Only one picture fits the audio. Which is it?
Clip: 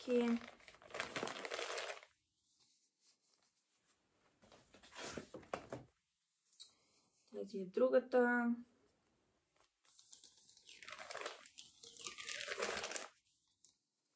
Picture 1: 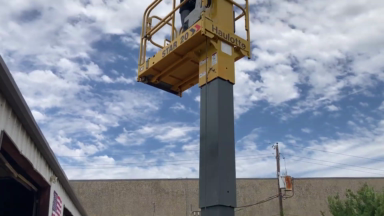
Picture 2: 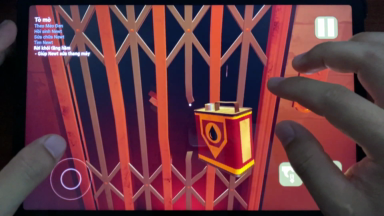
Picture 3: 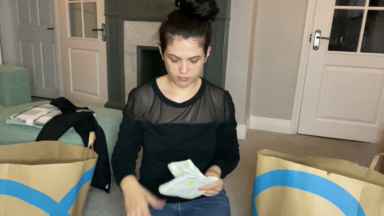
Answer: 3